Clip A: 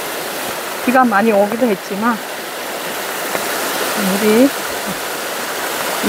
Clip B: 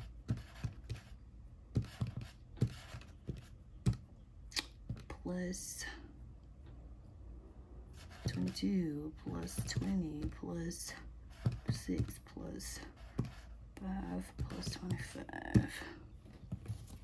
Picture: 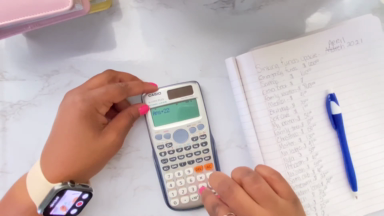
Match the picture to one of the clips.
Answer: B